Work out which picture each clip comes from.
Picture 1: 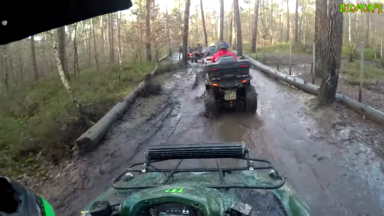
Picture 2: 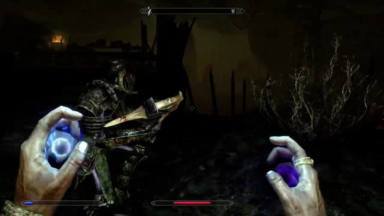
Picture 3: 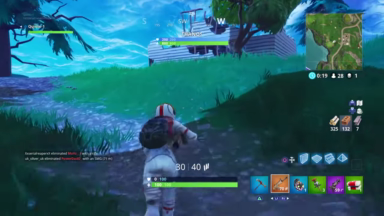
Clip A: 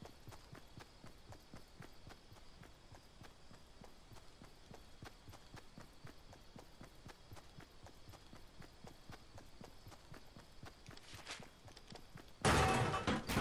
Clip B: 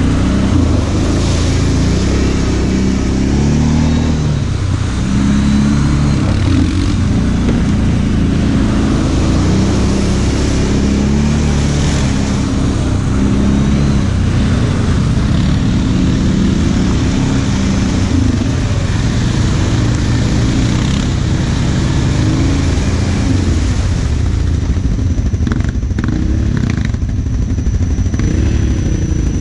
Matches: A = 3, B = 1